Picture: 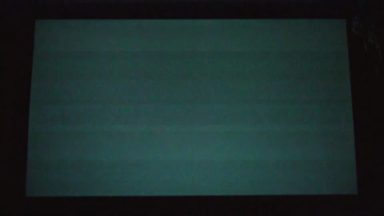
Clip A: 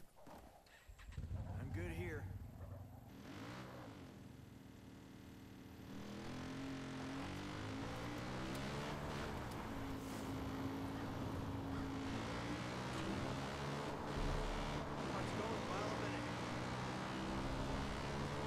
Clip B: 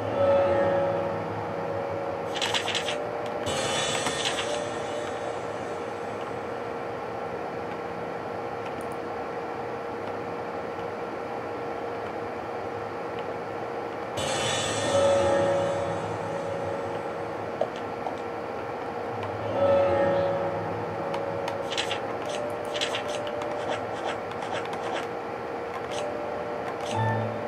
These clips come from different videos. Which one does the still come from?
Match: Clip B